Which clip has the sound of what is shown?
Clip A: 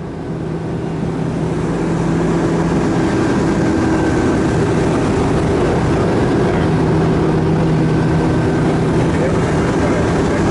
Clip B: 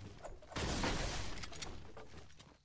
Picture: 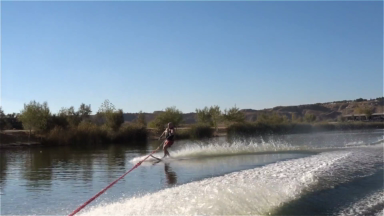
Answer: A